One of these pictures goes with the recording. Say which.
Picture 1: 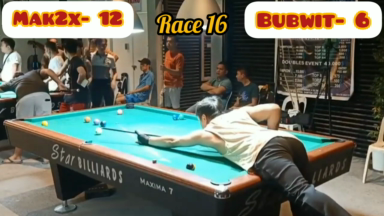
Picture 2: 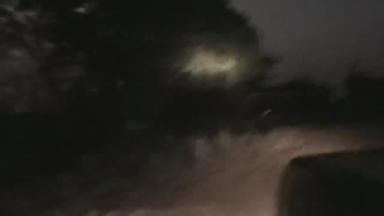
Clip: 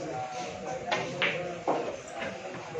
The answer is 1